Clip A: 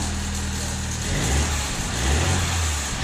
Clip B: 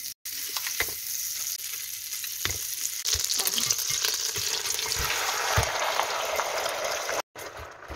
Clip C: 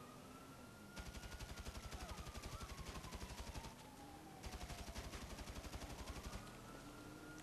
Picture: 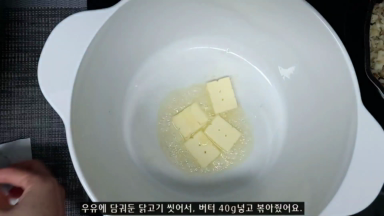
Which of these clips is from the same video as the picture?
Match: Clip B